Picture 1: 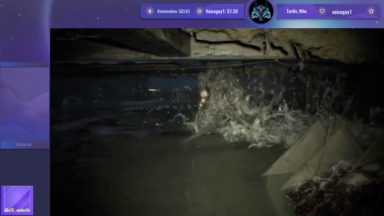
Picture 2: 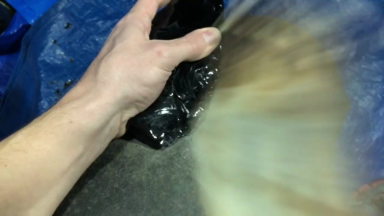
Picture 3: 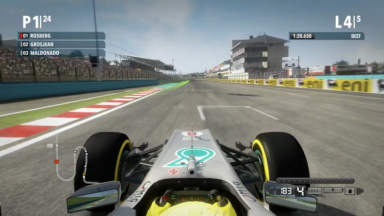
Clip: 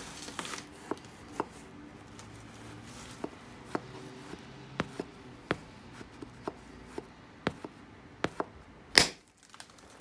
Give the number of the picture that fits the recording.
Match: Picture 2